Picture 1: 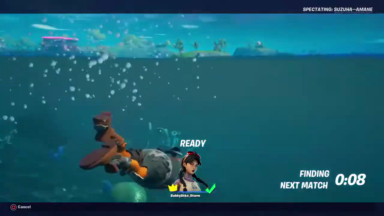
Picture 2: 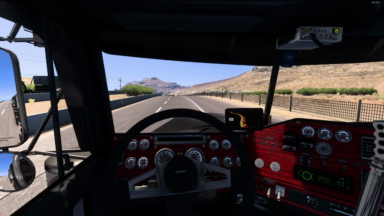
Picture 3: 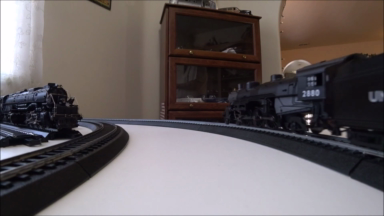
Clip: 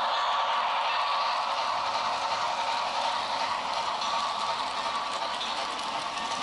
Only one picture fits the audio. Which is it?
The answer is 3